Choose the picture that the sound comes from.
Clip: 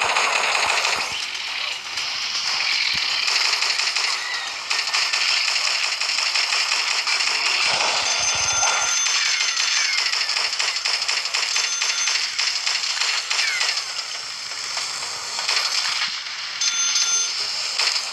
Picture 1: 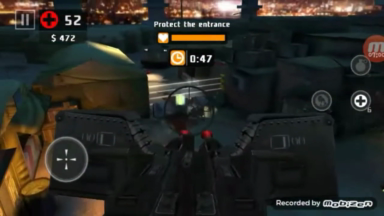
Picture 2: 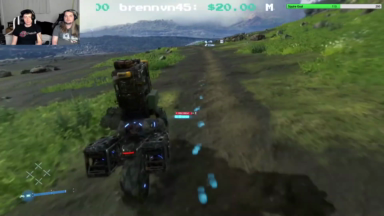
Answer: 1